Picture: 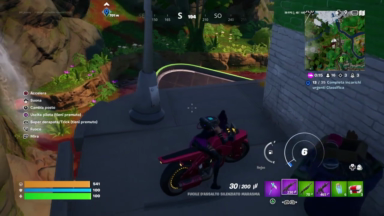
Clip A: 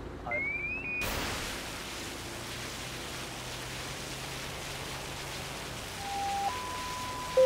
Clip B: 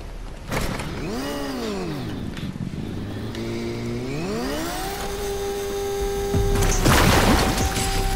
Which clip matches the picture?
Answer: B